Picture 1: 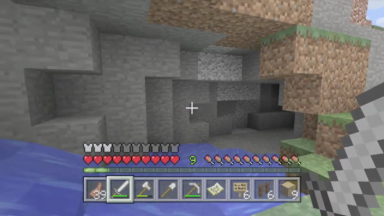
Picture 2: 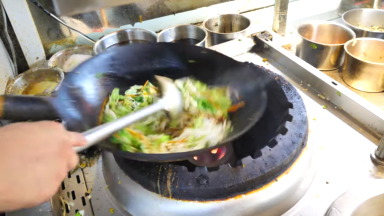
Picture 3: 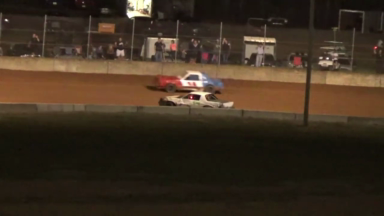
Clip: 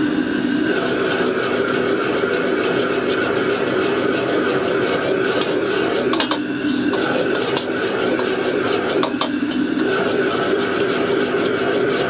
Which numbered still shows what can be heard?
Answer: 2